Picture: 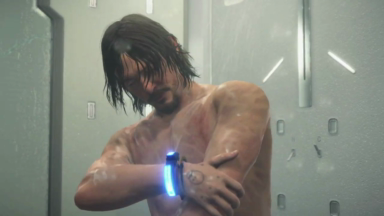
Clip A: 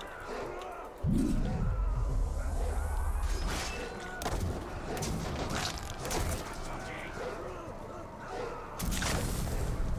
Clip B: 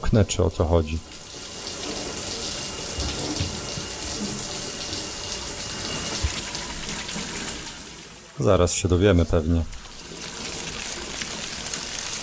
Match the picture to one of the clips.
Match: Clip B